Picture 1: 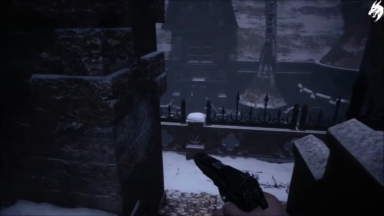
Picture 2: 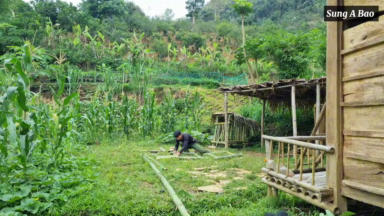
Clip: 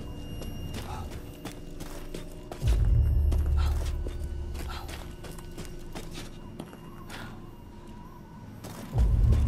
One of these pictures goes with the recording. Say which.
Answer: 1